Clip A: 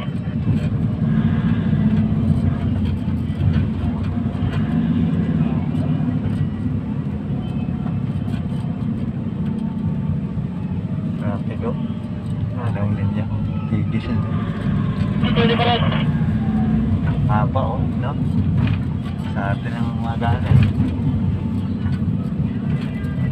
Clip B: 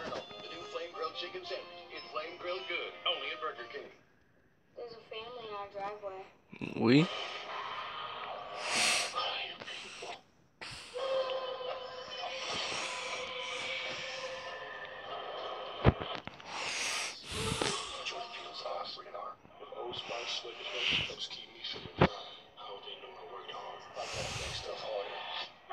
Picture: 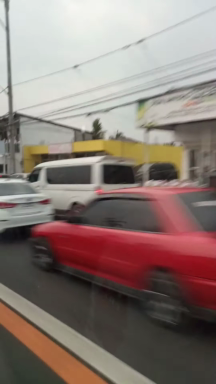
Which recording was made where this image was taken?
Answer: A